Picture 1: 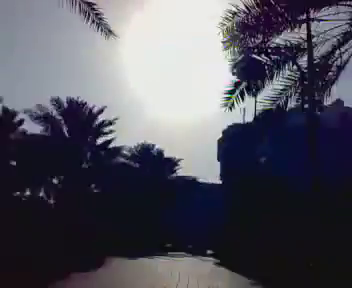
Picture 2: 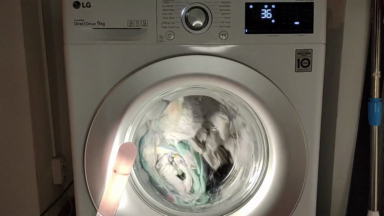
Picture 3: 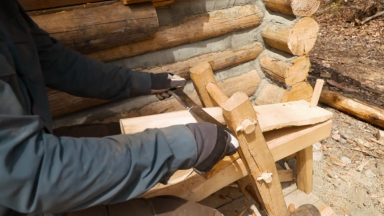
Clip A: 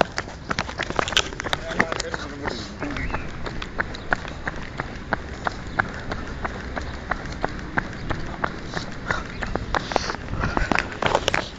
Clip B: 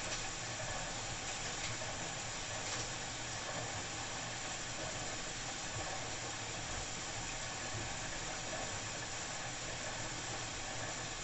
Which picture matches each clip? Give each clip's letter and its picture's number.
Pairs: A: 1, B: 2